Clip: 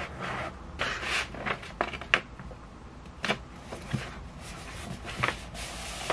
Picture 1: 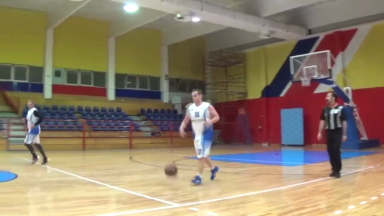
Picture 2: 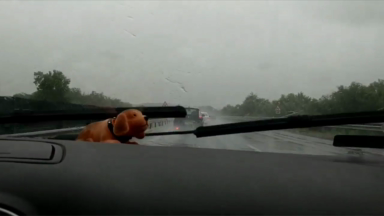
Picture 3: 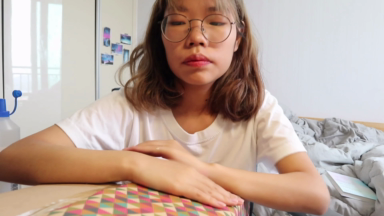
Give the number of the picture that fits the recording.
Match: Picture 3